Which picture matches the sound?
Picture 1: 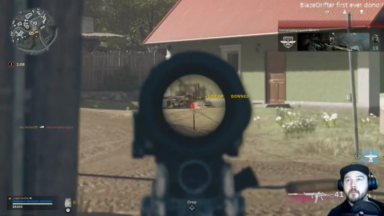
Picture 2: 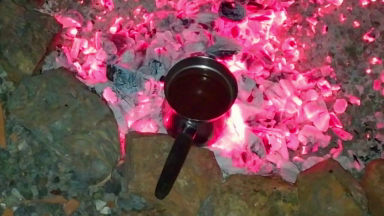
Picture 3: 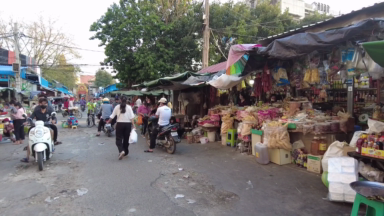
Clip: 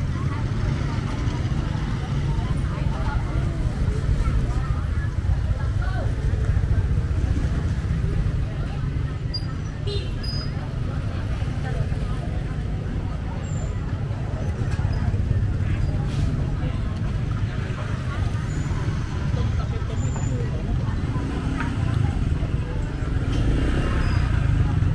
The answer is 3